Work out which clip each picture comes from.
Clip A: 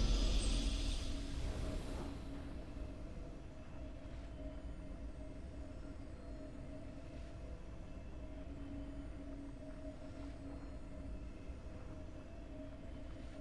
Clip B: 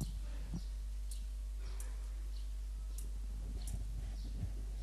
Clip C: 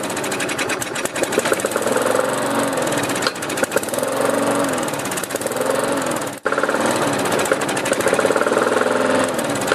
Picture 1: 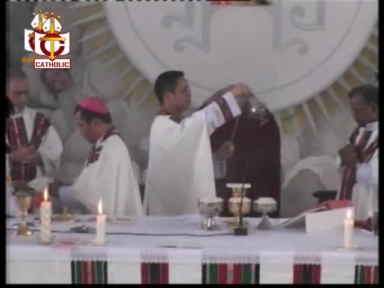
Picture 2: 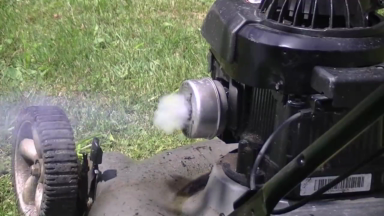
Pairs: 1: B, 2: C